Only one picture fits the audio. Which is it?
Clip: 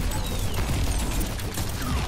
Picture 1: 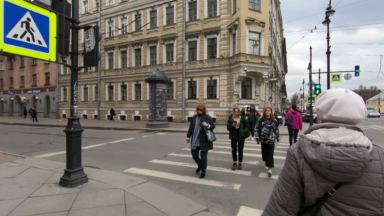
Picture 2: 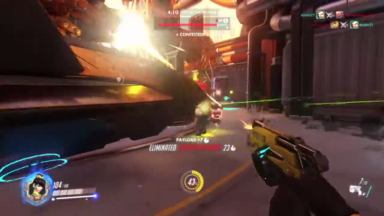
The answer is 2